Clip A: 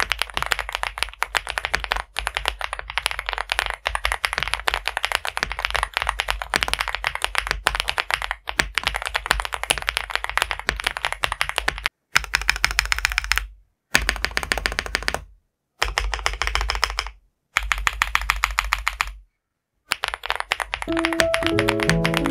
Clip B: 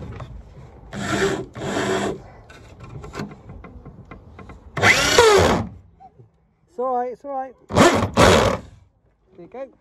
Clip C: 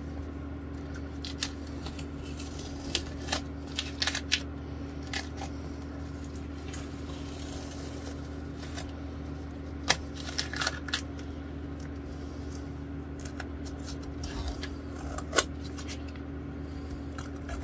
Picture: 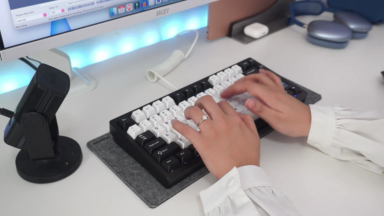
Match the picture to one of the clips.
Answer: A